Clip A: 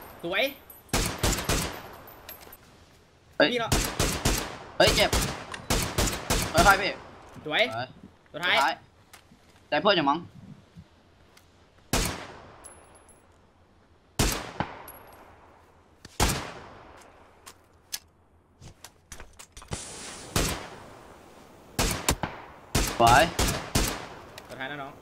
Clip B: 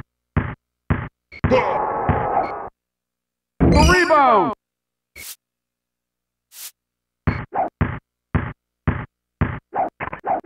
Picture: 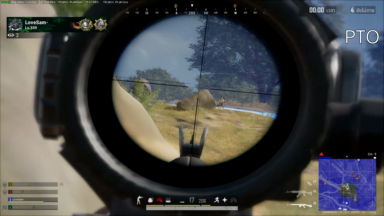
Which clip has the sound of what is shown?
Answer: A